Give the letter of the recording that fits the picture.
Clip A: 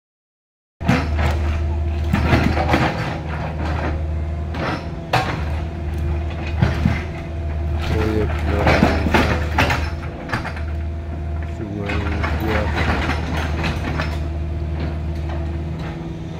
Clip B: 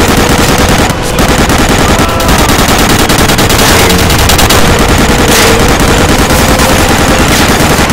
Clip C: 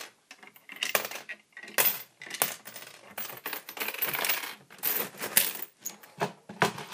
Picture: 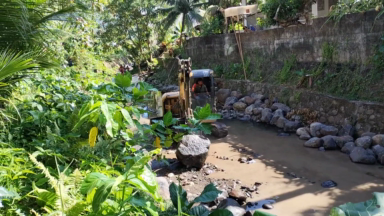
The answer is A